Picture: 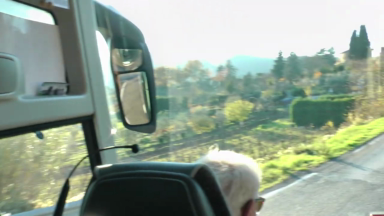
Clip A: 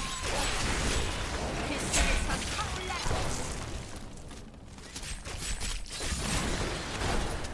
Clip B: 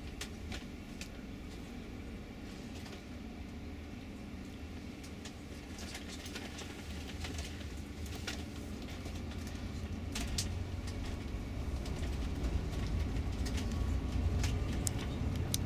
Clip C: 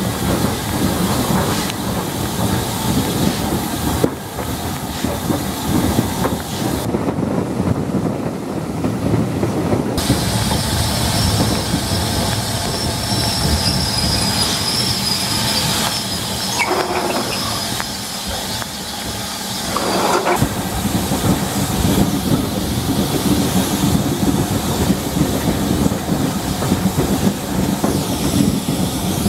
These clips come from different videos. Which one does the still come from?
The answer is B